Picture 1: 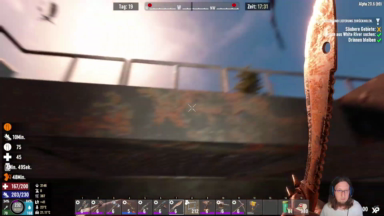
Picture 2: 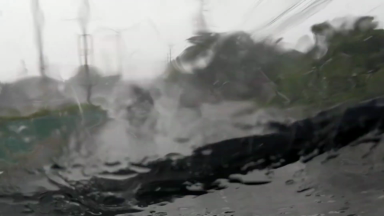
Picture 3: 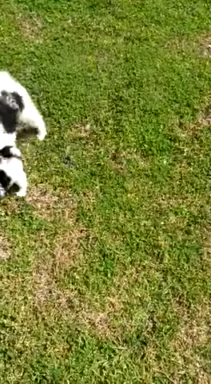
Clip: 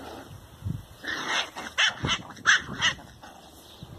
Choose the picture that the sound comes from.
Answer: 3